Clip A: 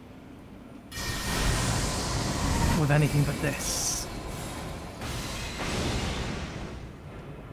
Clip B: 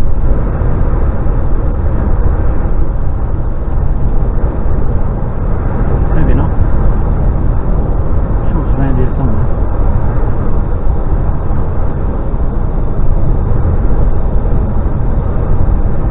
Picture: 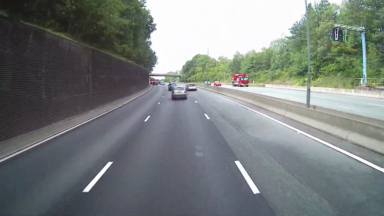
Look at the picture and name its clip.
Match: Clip B